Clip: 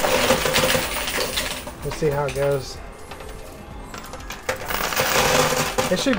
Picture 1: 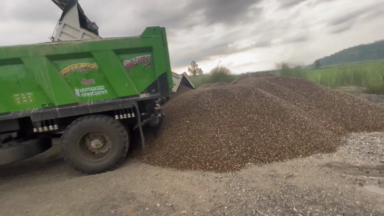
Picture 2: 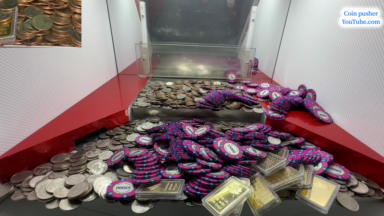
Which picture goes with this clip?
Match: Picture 2